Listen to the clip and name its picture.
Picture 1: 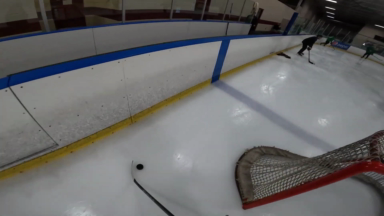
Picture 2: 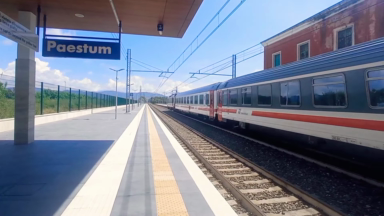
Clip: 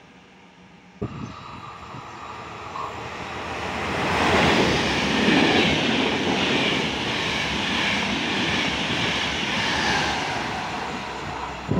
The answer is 2